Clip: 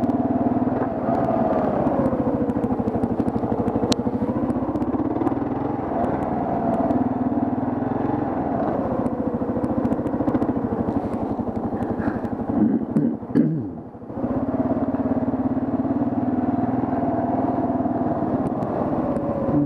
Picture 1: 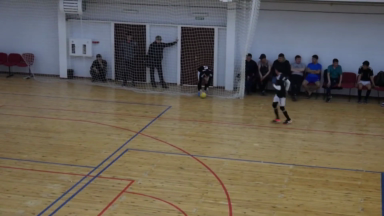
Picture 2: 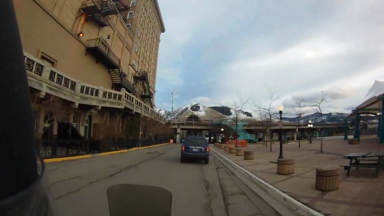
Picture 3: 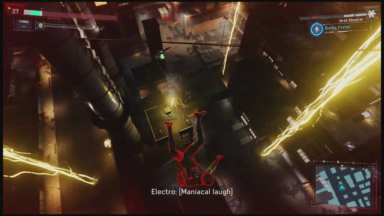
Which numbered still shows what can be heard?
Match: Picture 2